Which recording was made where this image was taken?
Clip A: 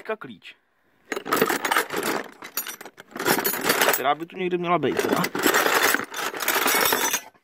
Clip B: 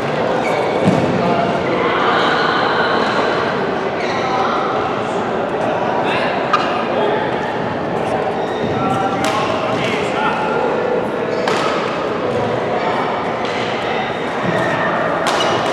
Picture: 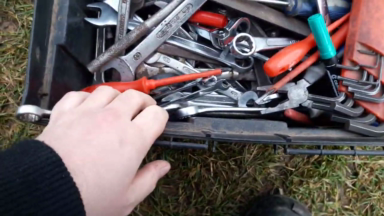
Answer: A